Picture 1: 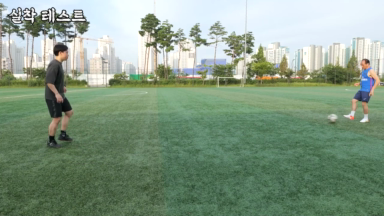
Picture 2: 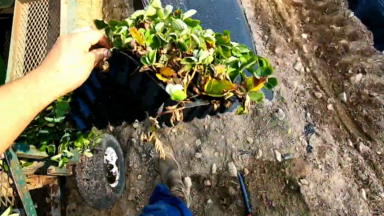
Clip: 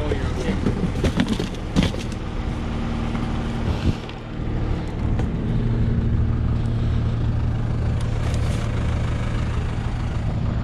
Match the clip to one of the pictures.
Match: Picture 2